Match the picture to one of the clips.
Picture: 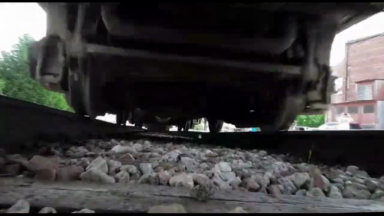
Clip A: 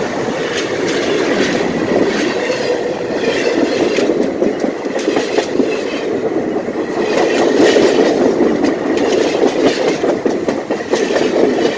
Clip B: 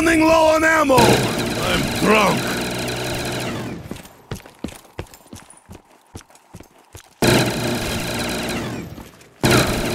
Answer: A